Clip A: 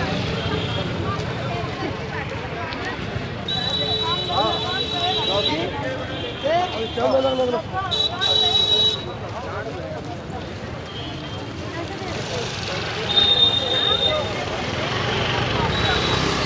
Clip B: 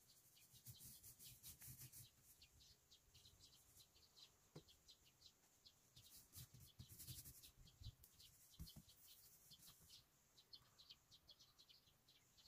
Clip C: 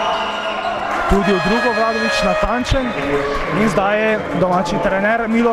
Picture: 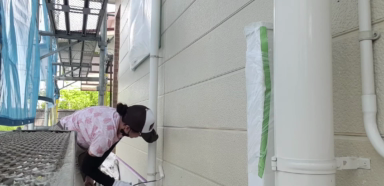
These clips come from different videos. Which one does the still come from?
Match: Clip B